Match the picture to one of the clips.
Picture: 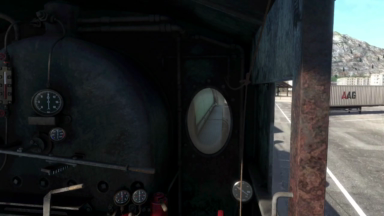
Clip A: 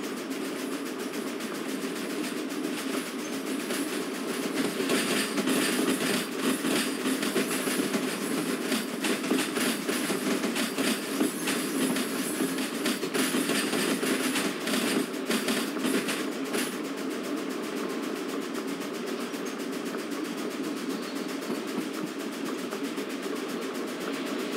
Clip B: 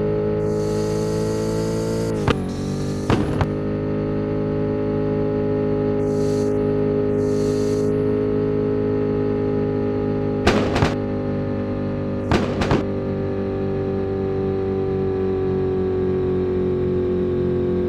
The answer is A